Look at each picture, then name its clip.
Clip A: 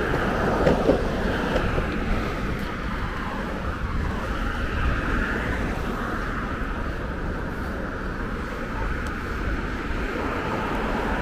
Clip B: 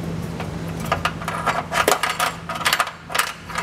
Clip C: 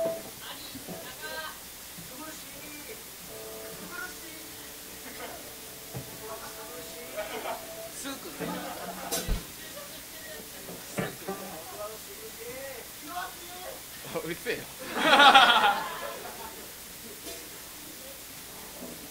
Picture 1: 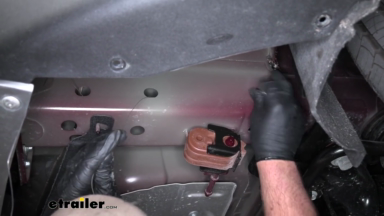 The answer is B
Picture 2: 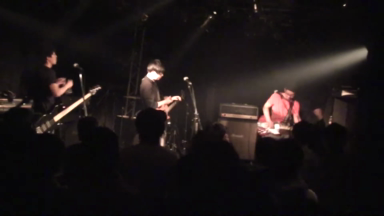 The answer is C